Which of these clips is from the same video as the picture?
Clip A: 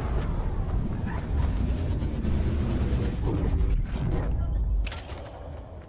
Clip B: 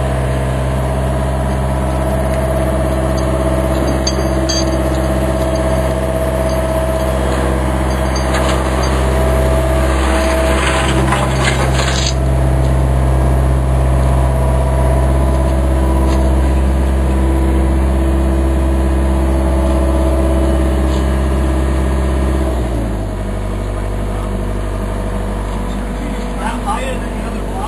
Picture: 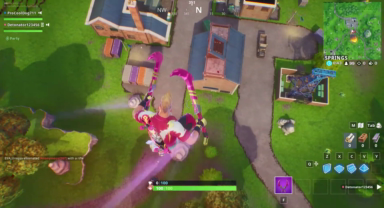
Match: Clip A